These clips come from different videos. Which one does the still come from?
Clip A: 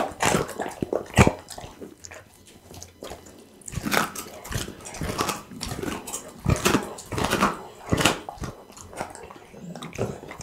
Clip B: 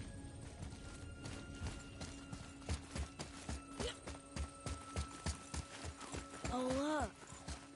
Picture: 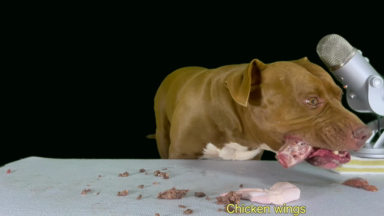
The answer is A